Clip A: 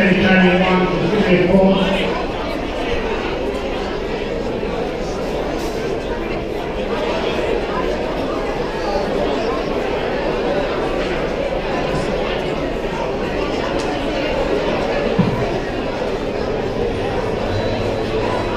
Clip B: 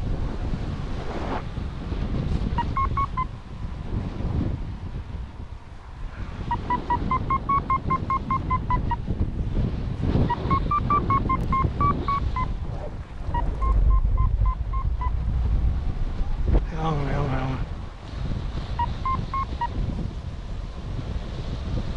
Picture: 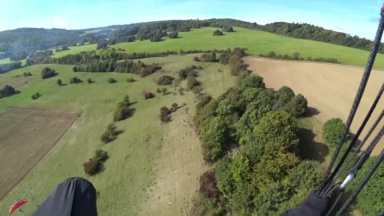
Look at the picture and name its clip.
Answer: B